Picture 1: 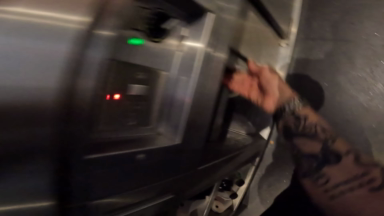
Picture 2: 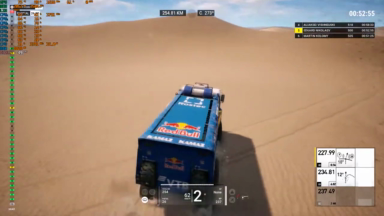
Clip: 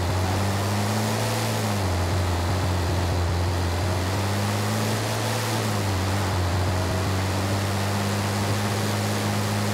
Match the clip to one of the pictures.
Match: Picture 2